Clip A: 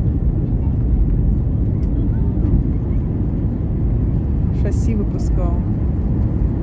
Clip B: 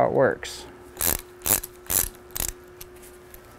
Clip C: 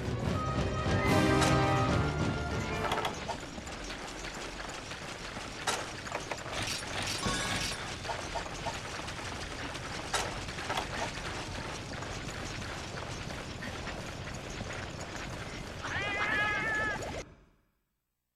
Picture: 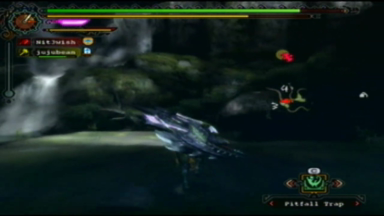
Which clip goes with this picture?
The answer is C